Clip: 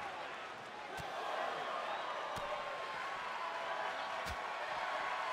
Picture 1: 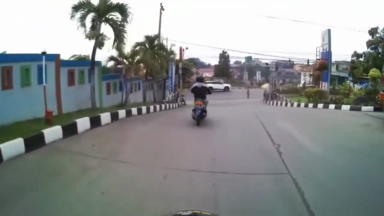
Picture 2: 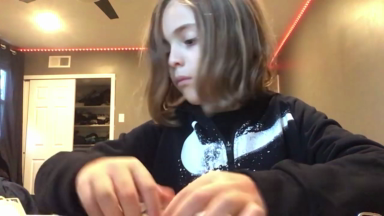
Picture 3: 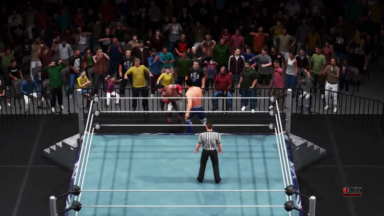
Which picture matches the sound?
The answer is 3